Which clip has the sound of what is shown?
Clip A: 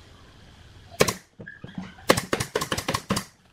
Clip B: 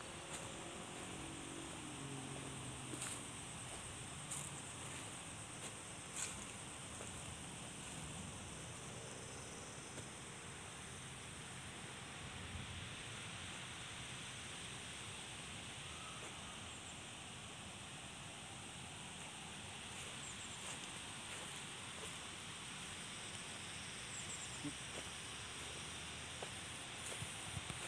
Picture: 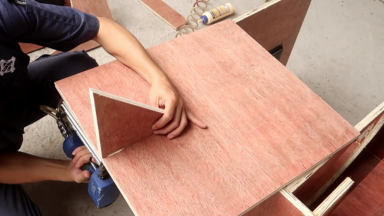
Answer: A